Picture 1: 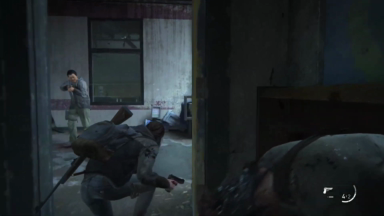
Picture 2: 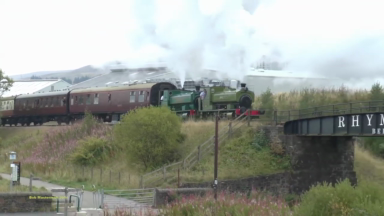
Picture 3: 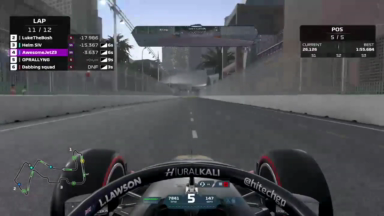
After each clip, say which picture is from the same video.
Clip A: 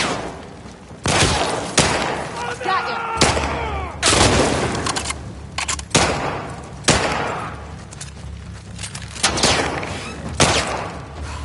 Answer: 1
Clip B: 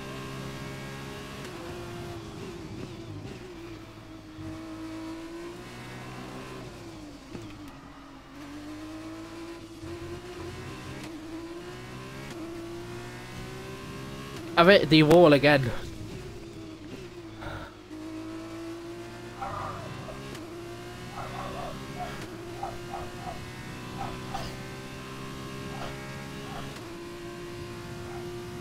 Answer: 3